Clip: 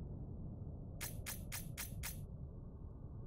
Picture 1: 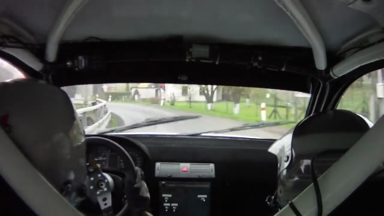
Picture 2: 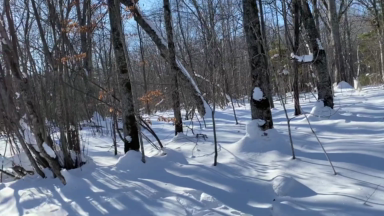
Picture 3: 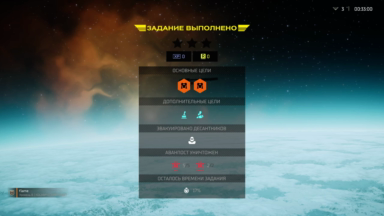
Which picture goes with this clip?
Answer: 3